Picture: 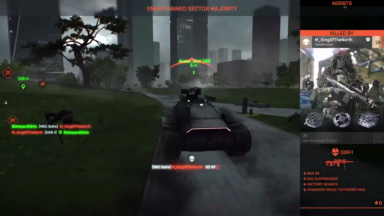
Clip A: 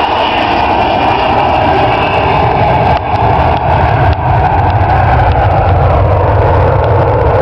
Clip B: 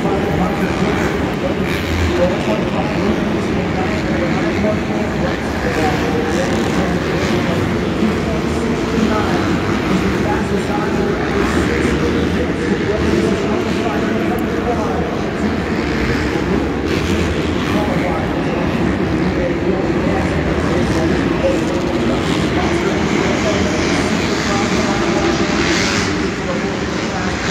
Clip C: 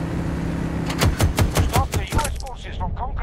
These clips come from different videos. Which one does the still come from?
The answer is C